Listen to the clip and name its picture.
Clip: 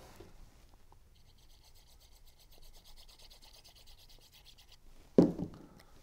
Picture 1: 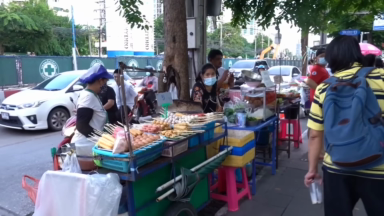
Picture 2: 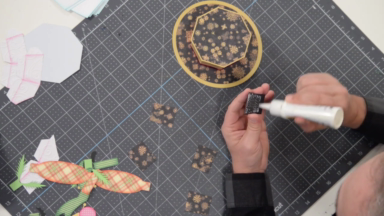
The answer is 2